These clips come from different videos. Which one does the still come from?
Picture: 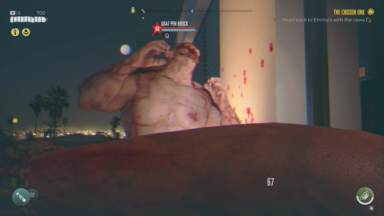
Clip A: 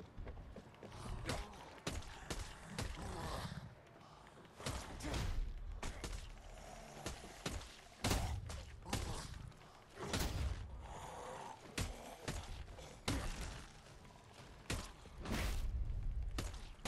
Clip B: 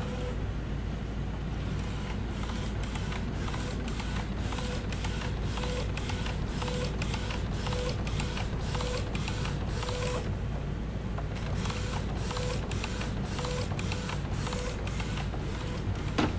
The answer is A